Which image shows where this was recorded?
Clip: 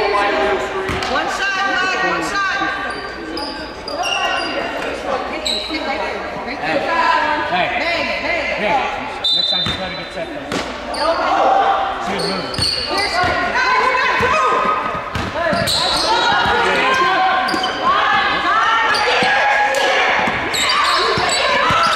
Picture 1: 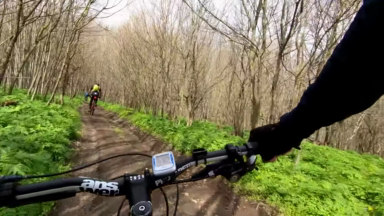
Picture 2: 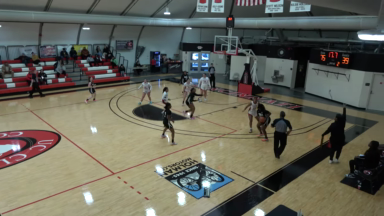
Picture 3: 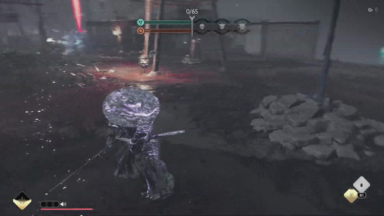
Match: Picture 2